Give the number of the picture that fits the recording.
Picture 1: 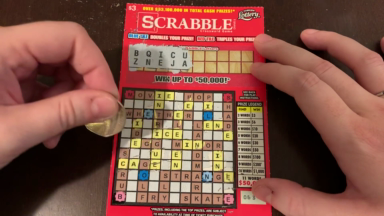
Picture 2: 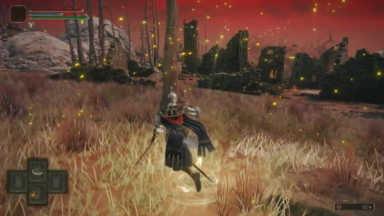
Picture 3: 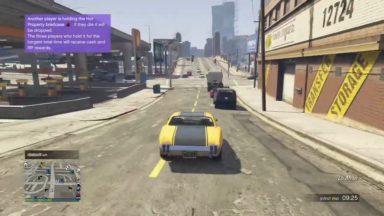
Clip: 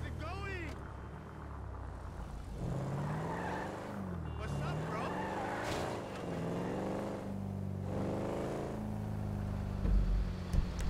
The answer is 3